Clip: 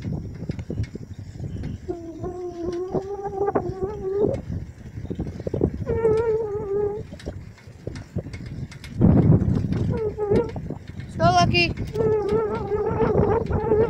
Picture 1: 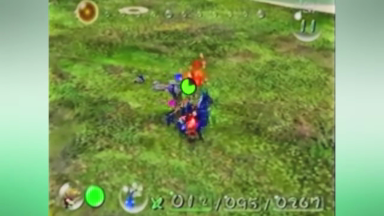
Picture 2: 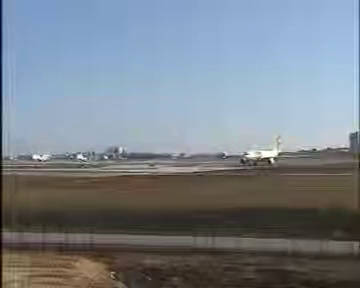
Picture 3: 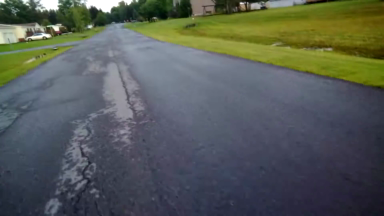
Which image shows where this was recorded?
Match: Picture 3